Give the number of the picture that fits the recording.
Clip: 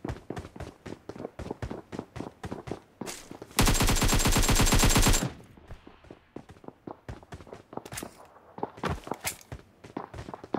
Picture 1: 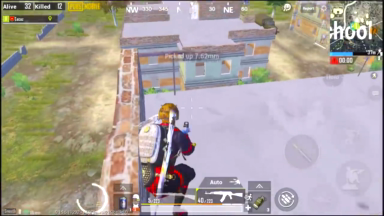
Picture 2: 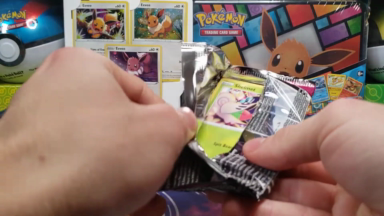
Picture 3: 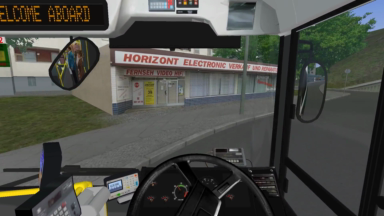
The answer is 1